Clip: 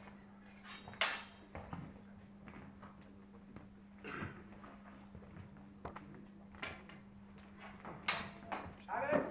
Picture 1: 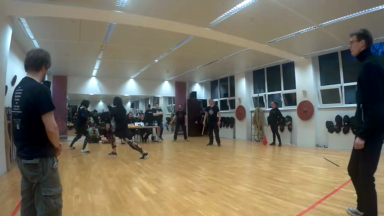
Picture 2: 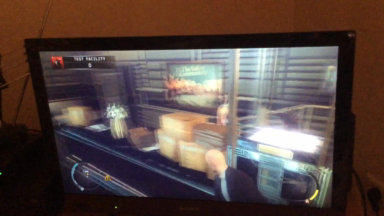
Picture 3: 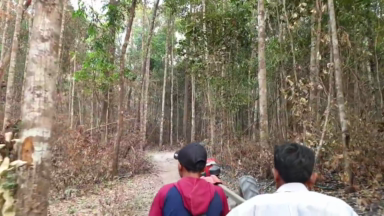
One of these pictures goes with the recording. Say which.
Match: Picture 1